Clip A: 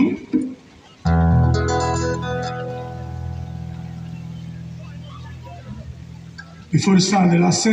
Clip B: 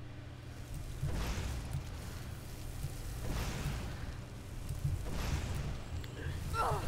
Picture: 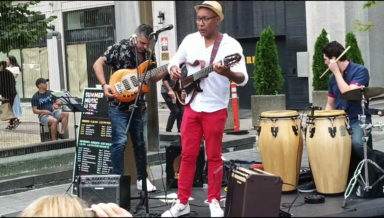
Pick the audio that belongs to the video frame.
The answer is A